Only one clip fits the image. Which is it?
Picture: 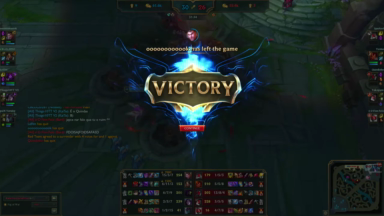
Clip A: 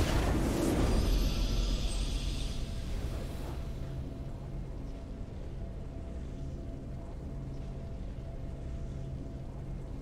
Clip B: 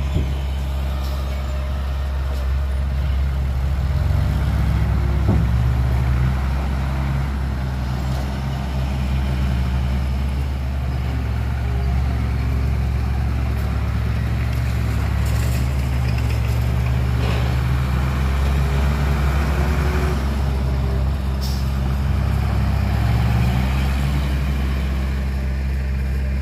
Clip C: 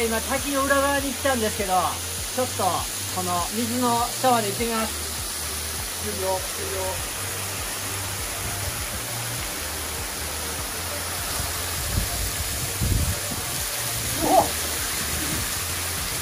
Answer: A